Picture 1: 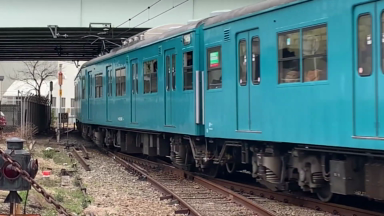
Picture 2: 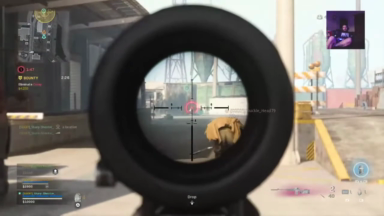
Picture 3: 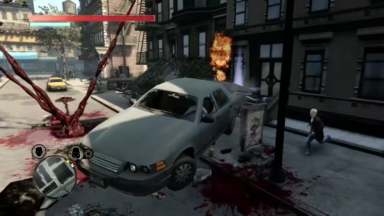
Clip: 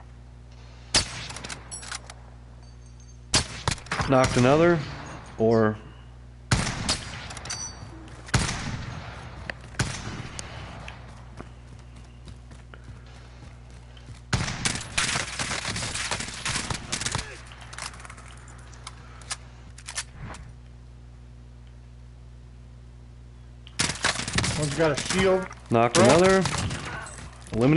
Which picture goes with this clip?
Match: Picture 2